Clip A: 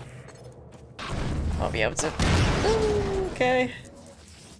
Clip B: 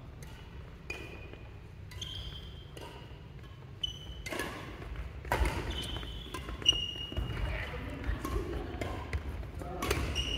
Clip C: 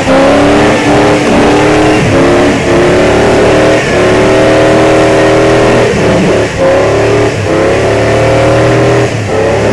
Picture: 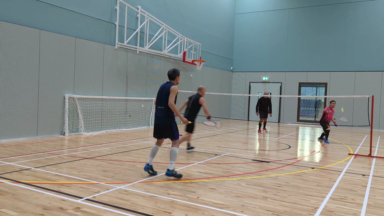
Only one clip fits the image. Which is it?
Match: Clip B